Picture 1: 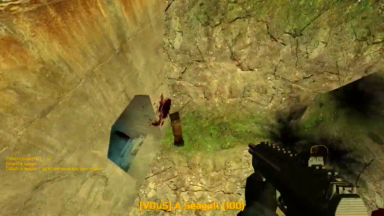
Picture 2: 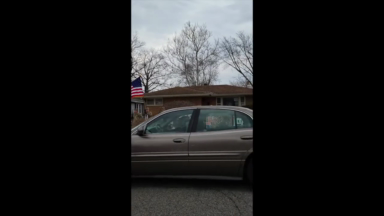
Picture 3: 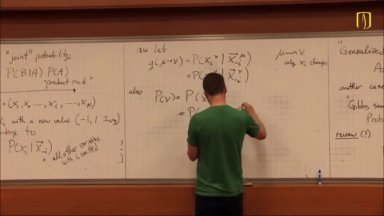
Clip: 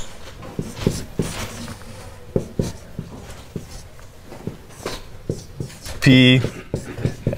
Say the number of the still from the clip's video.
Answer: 3